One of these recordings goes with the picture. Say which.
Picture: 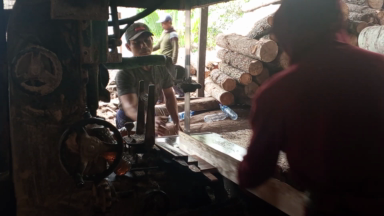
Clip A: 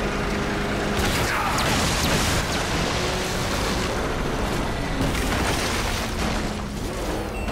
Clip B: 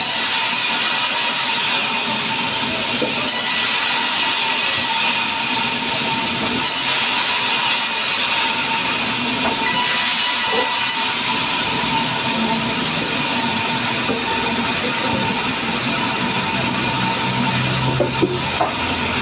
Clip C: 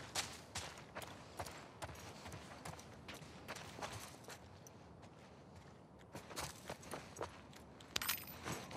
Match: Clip B